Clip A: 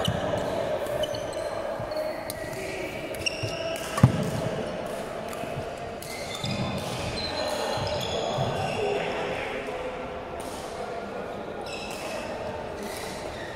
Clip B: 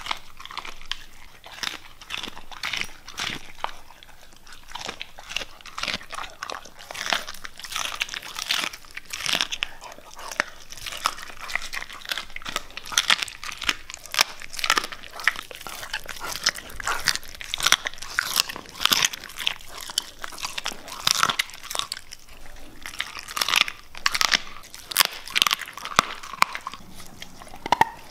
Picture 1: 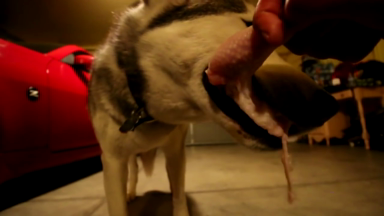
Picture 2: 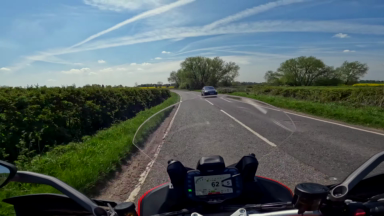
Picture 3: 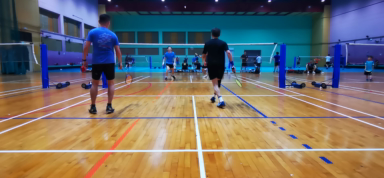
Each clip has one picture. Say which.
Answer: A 3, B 1